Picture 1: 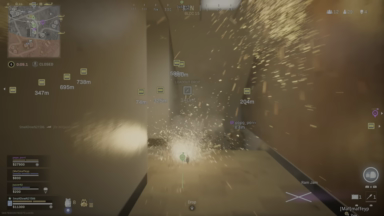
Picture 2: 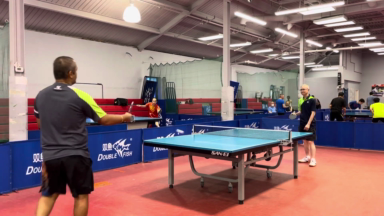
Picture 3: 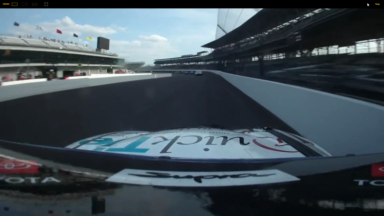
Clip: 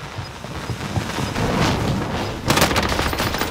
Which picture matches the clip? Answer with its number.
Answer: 1